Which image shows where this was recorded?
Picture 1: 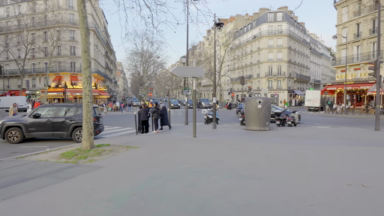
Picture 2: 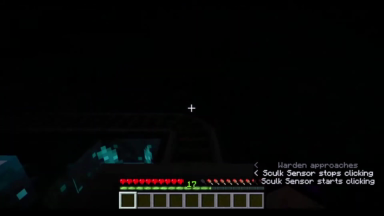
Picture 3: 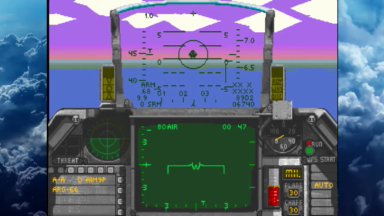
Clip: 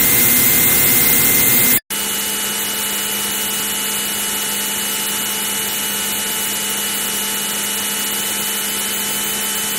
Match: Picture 3